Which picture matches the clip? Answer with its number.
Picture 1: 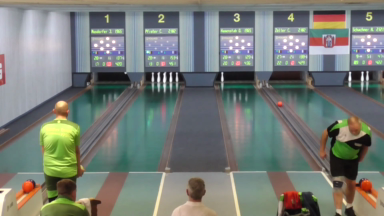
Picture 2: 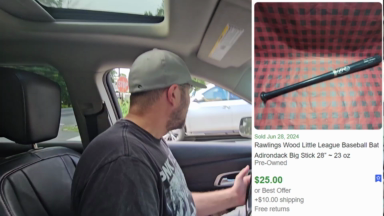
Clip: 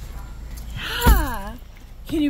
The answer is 2